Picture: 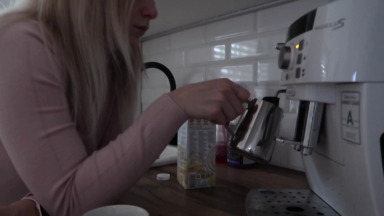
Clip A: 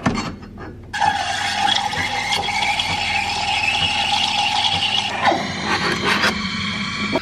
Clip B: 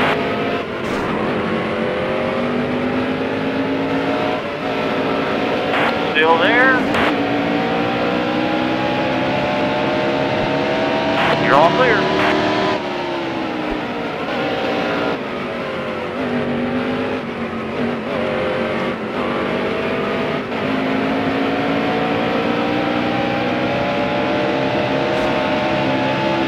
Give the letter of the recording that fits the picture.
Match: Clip A